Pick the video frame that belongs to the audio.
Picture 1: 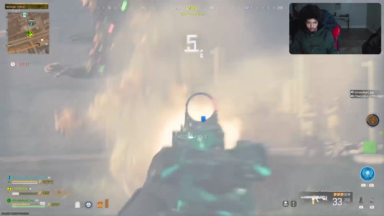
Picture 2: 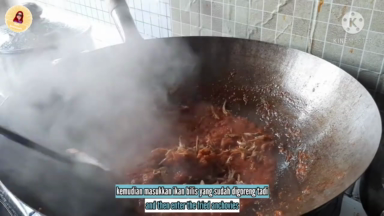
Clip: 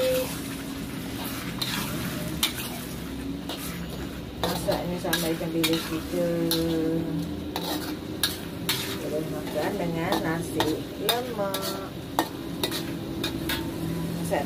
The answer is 2